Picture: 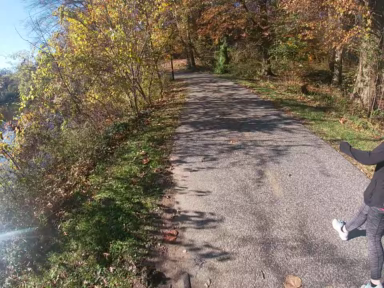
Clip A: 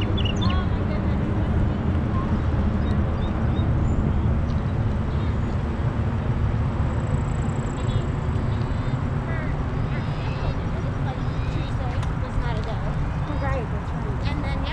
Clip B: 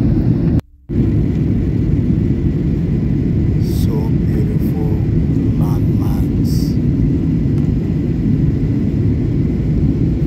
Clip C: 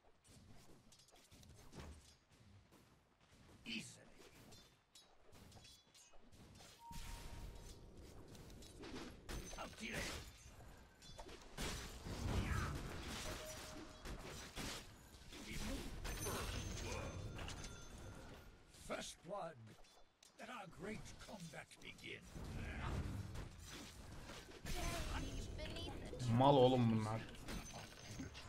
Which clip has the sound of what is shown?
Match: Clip A